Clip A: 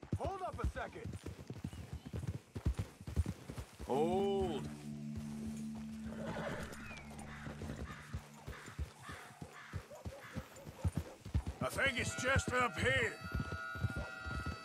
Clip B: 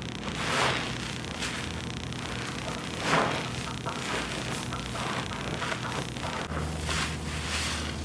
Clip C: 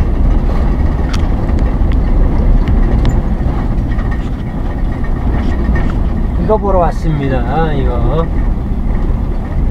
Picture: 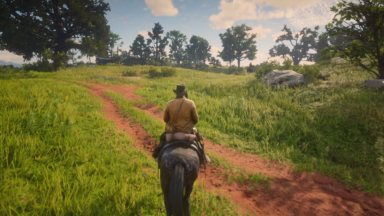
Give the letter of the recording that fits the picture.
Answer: A